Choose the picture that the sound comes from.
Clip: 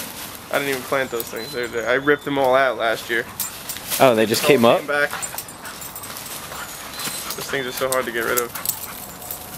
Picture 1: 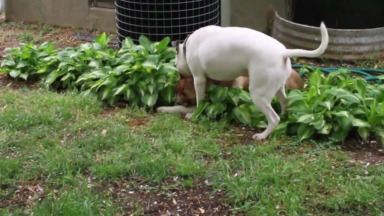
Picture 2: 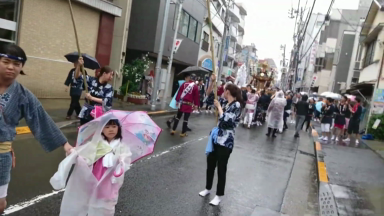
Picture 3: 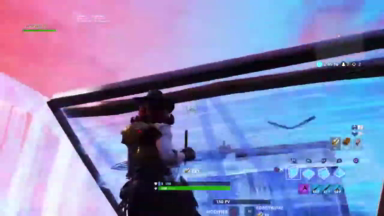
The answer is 1